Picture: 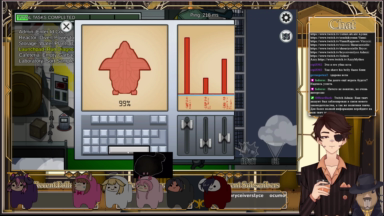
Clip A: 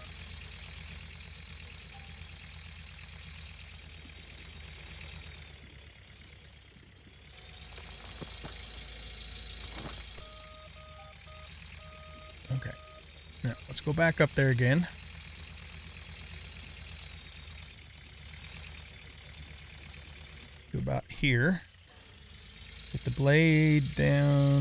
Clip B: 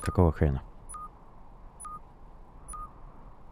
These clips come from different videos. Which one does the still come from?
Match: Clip B